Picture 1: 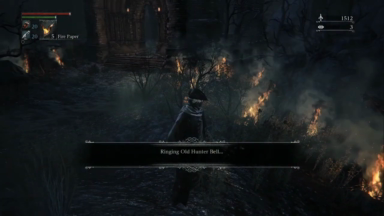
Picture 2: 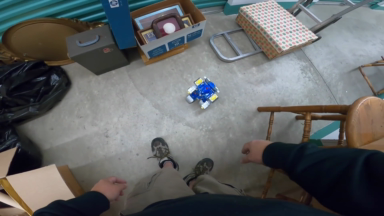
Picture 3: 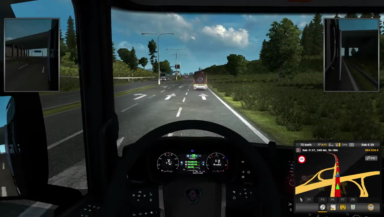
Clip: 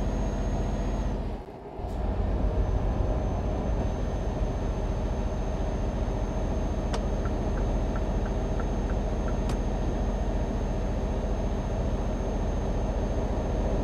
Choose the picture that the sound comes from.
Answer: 3